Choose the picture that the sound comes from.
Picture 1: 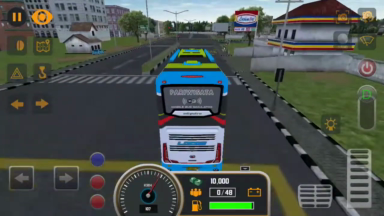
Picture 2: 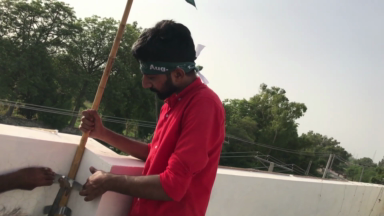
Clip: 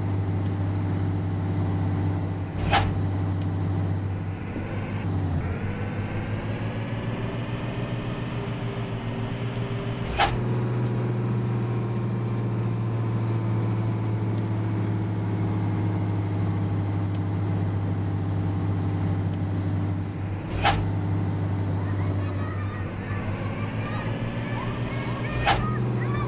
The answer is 1